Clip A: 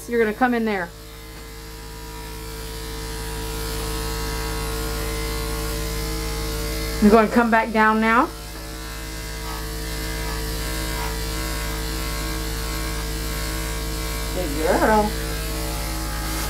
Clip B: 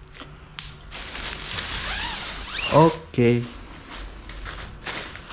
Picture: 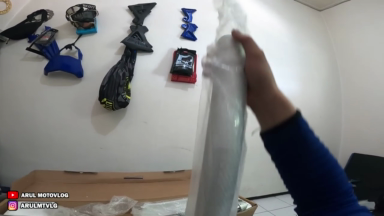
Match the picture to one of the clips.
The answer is B